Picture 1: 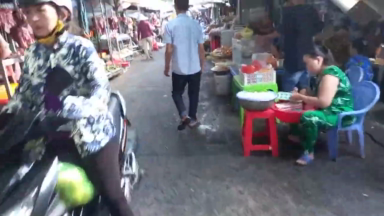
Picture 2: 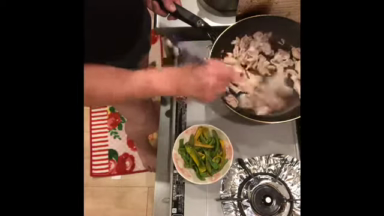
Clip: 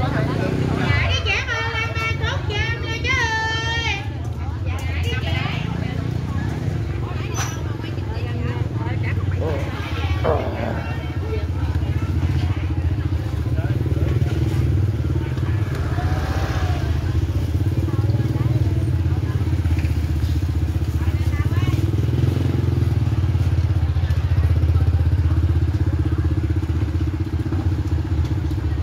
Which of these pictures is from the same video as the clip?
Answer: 1